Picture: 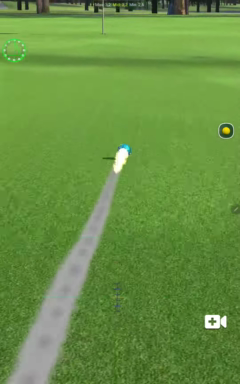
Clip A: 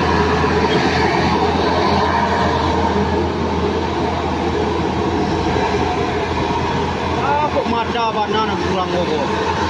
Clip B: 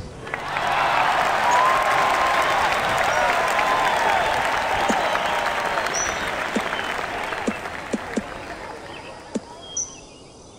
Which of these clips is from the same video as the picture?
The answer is B